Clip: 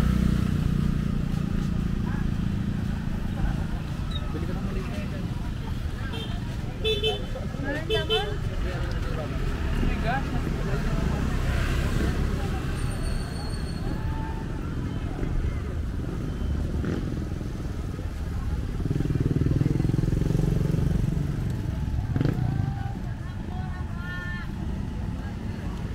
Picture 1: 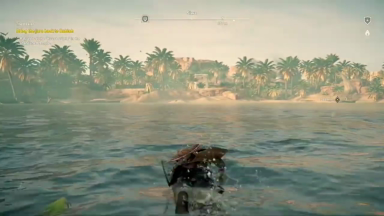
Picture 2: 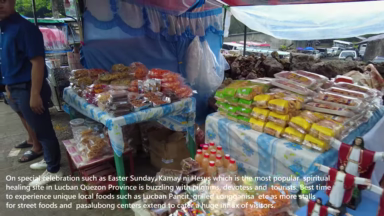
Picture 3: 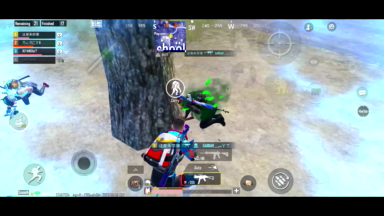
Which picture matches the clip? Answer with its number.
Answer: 2